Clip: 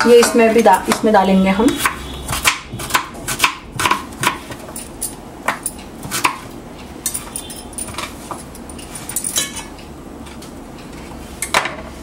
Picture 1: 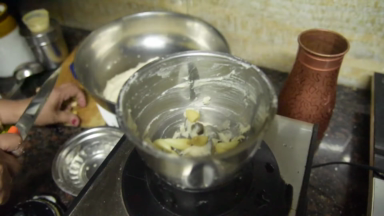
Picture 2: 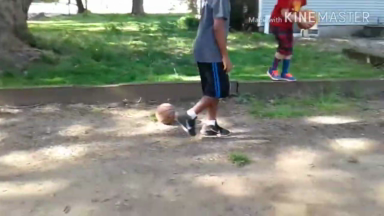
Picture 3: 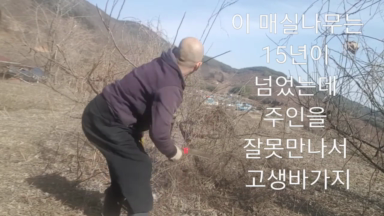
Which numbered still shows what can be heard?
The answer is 1